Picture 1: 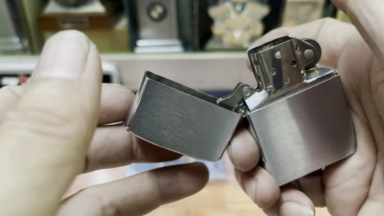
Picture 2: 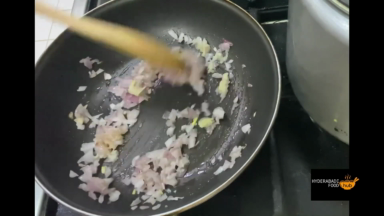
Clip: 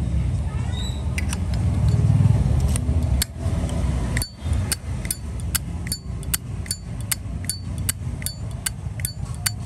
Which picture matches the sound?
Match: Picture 1